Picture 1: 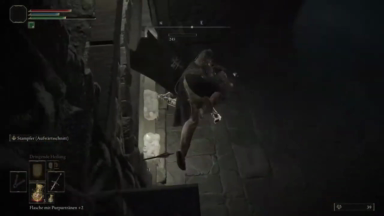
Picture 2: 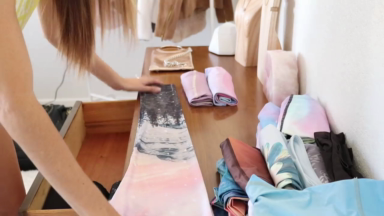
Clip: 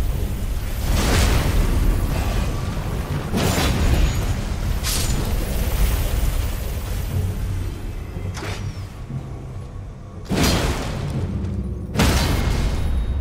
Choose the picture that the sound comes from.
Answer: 1